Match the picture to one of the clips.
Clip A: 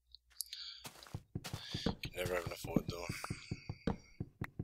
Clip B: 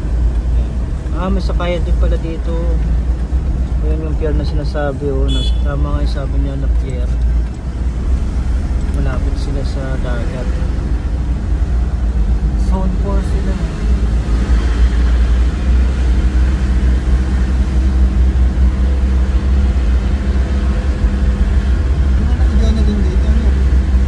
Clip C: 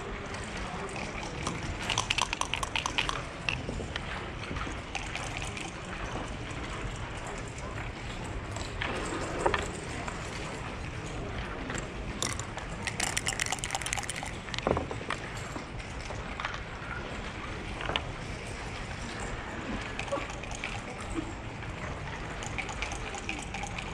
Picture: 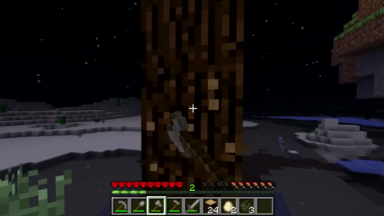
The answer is A